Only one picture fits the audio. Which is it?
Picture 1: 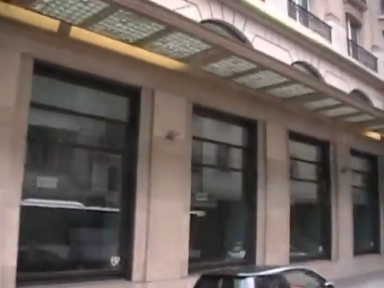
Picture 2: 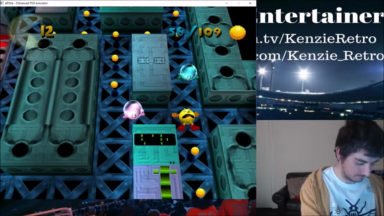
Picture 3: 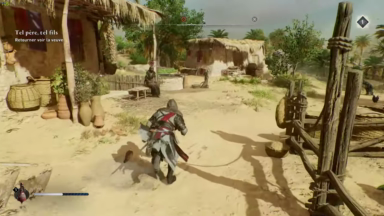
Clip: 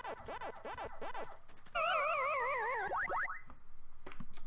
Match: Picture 2